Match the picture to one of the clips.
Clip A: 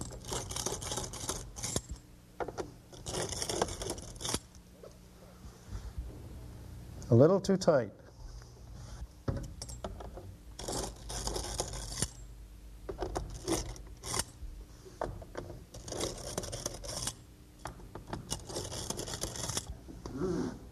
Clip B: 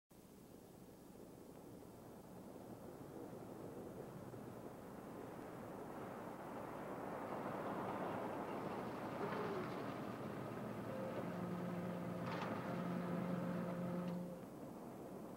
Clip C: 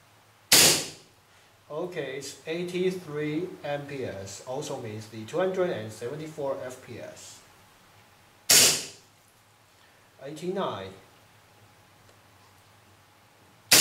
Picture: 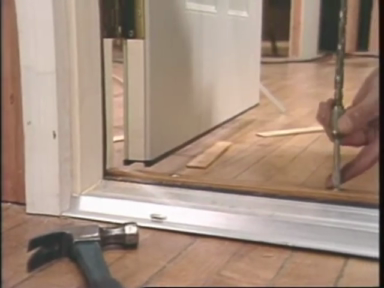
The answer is A